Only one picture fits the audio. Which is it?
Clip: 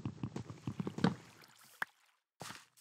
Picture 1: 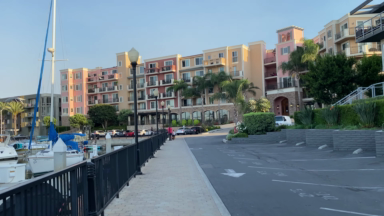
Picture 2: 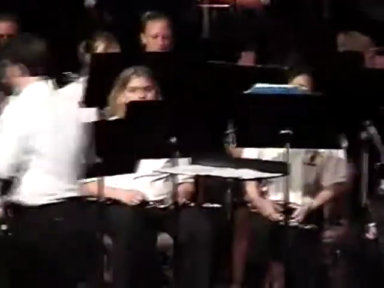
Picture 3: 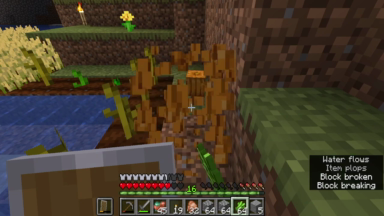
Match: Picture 3